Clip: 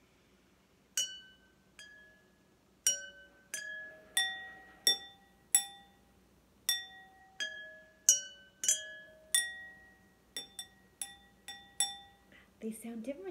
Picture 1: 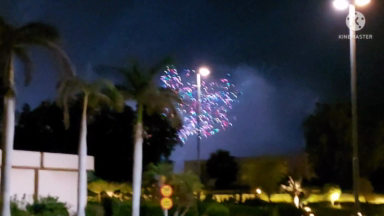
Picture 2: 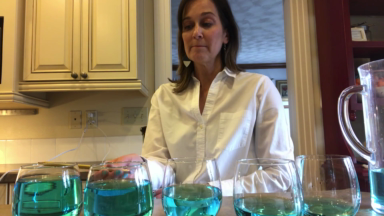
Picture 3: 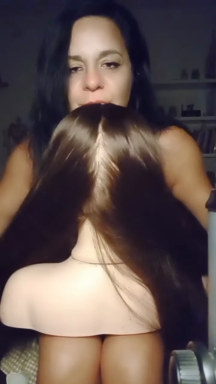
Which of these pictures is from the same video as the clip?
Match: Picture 2